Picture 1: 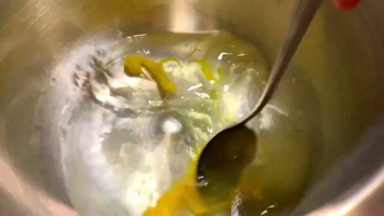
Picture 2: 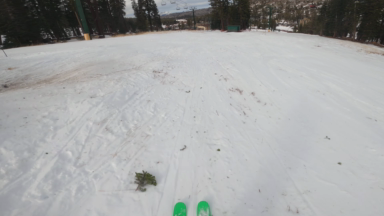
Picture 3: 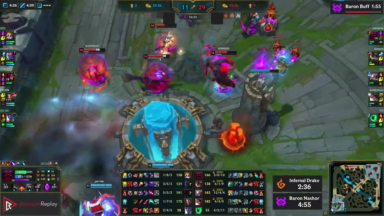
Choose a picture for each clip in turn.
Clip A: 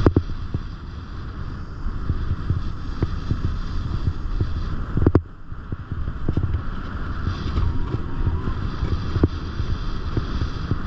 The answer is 2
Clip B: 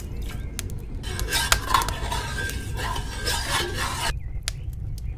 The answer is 1